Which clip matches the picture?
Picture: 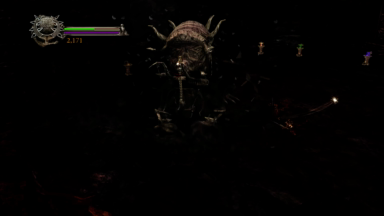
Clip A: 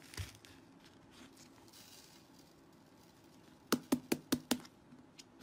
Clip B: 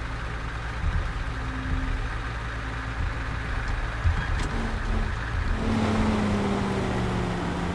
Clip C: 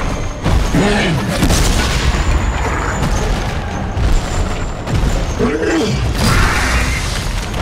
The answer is C